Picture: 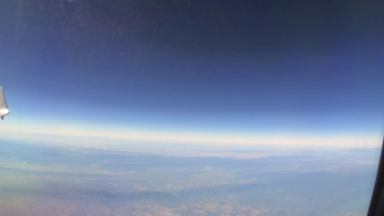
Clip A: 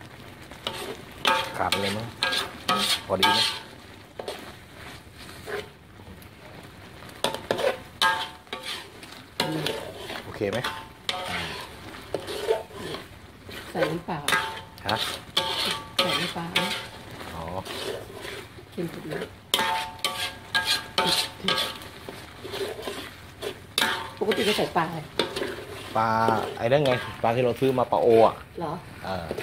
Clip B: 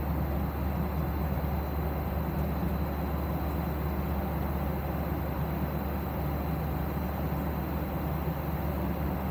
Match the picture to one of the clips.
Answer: B